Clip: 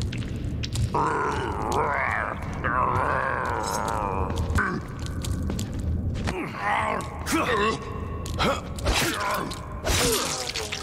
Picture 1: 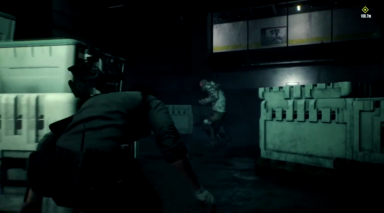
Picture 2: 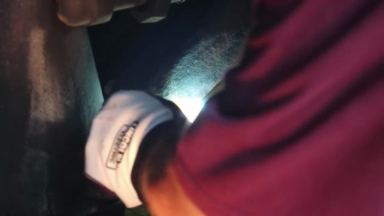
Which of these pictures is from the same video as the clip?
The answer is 1